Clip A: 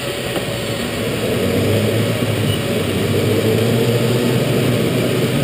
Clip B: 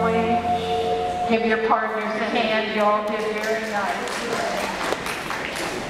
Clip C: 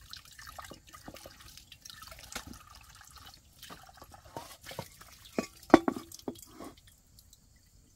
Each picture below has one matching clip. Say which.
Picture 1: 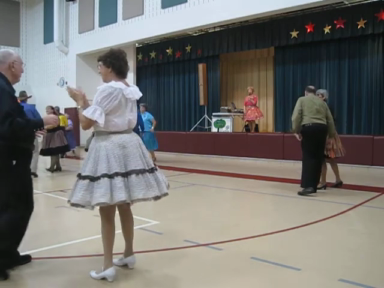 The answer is B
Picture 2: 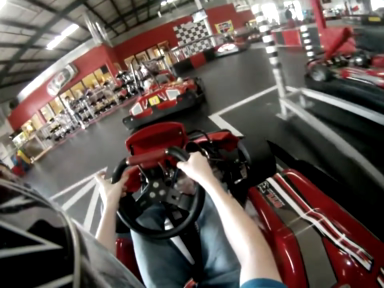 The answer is A